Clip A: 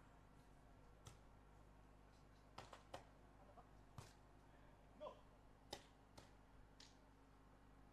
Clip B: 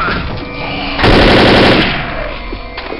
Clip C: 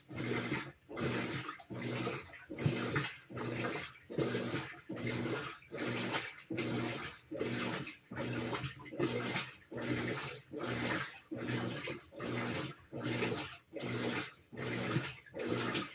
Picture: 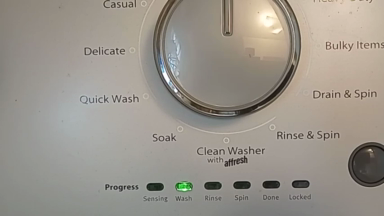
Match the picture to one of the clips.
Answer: C